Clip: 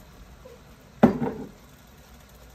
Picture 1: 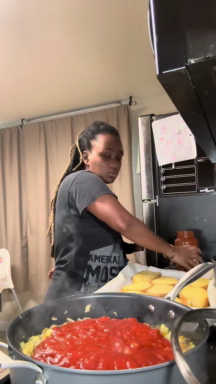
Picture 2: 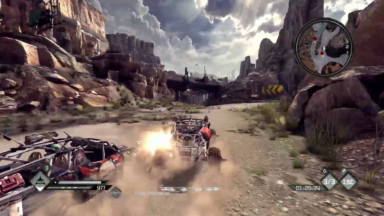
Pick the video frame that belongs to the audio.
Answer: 1